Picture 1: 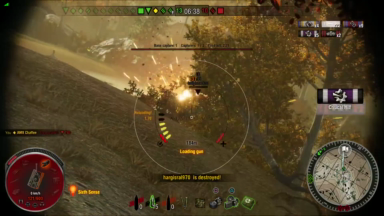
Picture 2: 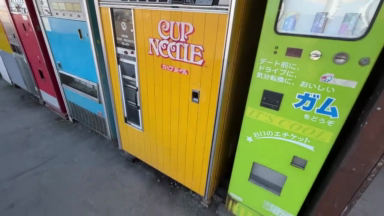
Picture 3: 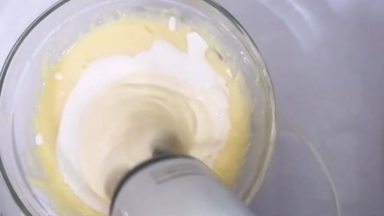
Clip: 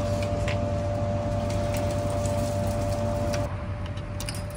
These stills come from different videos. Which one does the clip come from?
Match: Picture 2